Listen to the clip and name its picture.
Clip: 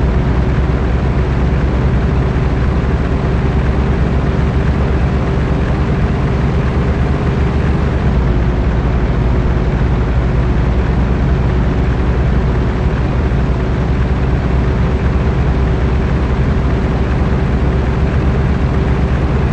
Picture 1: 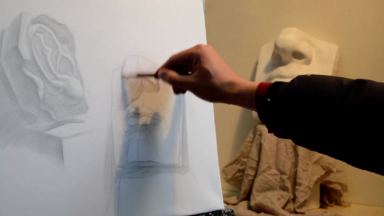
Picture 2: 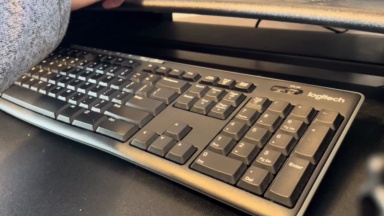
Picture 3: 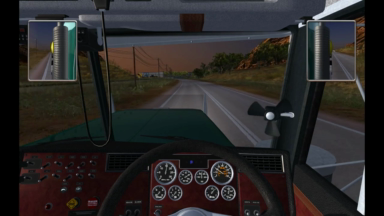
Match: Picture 3